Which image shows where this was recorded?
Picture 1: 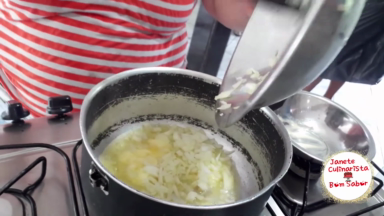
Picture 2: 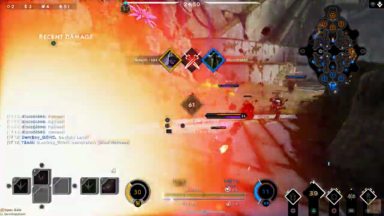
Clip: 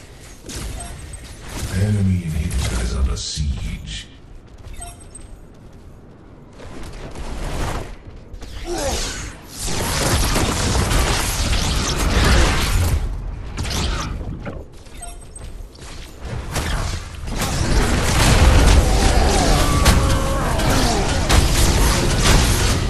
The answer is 2